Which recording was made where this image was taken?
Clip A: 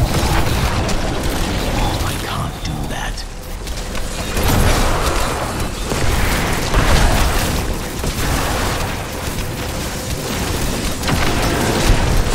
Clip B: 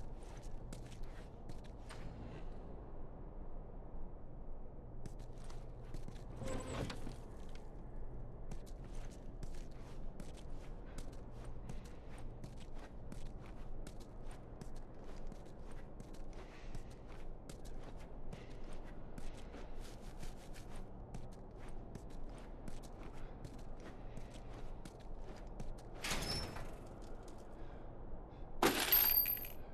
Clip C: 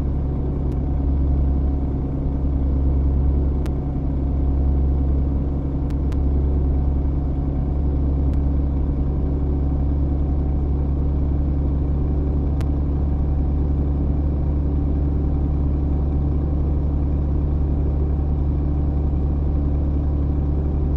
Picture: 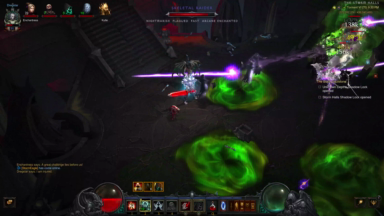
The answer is A